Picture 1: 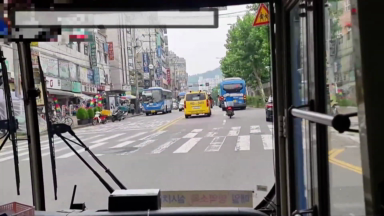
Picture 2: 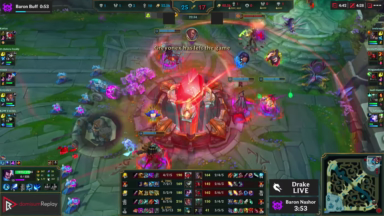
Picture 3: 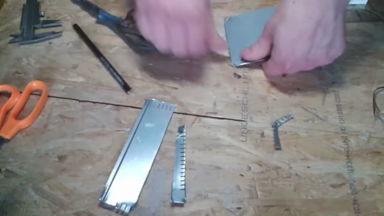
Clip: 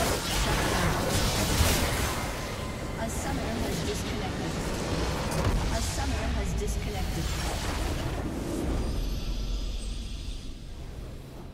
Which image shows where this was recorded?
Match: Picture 2